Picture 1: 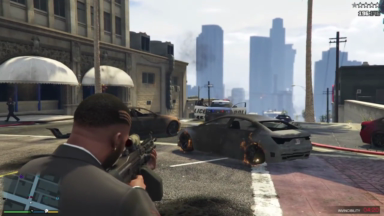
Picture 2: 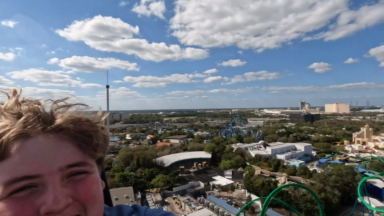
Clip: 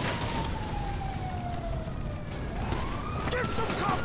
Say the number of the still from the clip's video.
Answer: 1